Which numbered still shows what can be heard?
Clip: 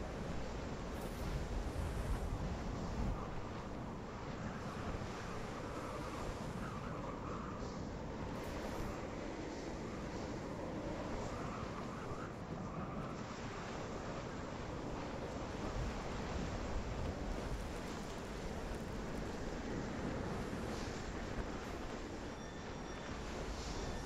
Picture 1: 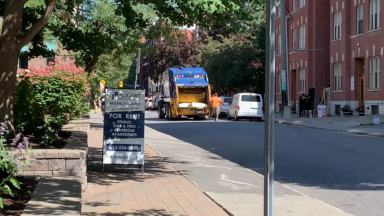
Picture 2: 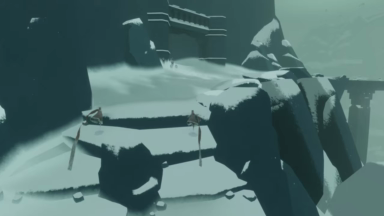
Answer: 2